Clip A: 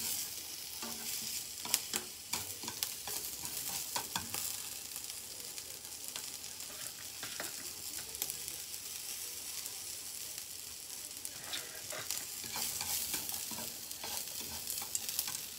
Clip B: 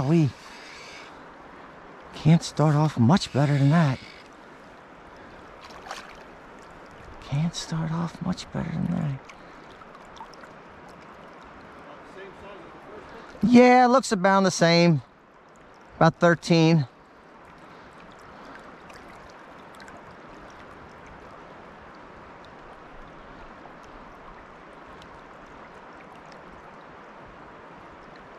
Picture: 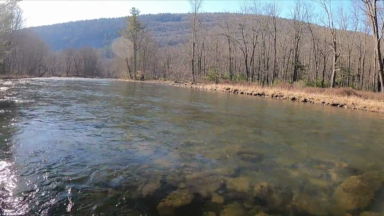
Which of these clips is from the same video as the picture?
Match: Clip B